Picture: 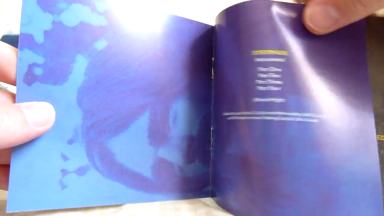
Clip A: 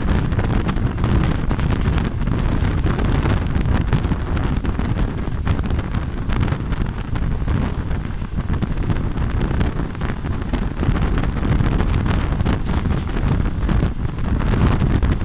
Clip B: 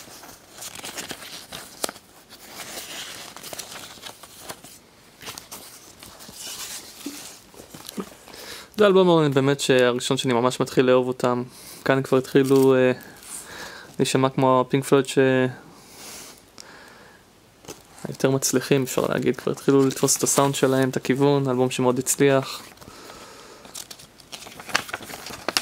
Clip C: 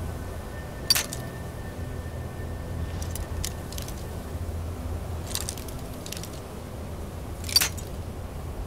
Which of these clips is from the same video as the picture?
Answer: B